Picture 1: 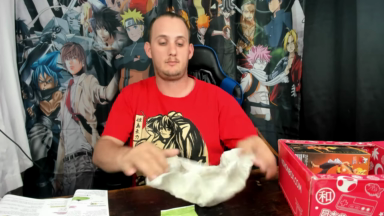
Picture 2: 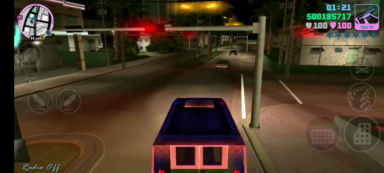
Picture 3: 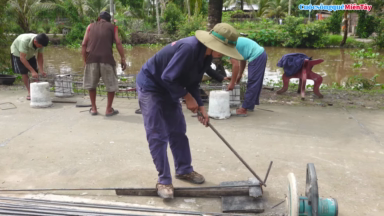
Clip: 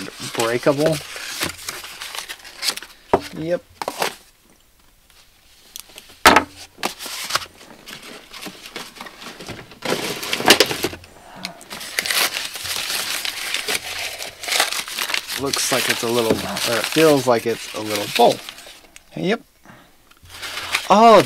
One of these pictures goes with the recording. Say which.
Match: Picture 1